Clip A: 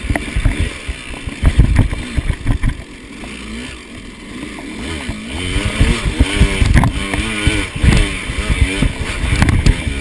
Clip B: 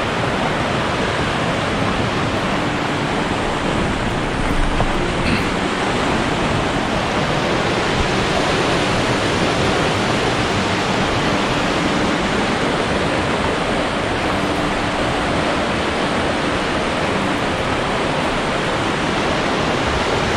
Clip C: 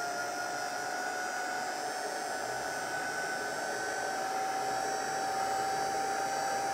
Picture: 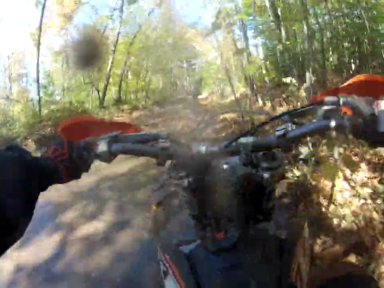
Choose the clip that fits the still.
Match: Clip A